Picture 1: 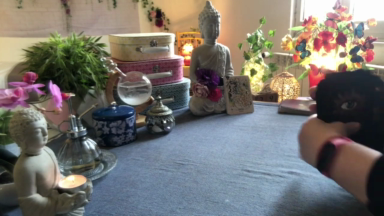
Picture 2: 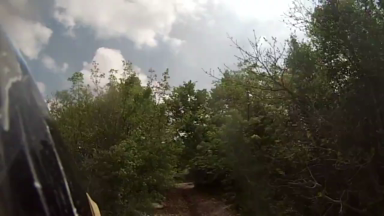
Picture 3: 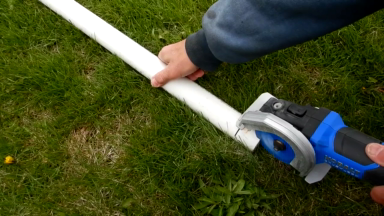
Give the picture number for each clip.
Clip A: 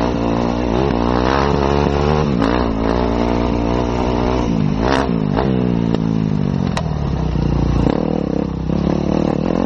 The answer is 2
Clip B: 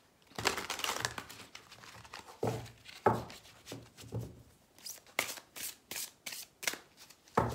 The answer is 1